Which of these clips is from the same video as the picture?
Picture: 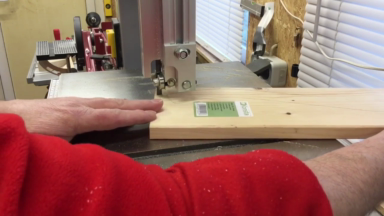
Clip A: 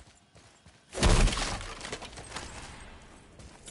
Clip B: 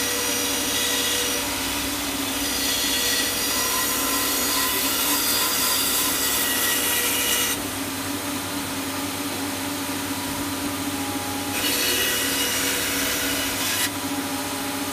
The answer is B